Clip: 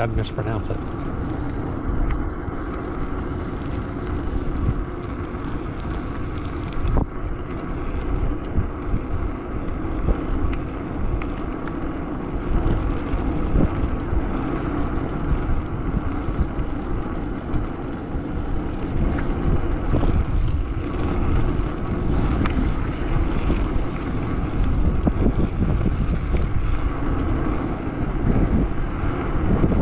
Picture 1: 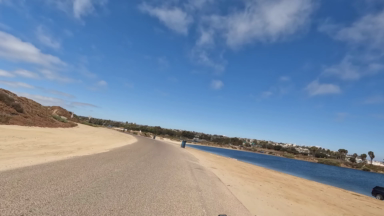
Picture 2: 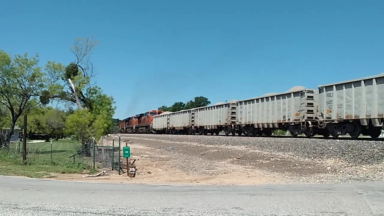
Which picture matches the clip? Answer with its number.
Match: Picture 1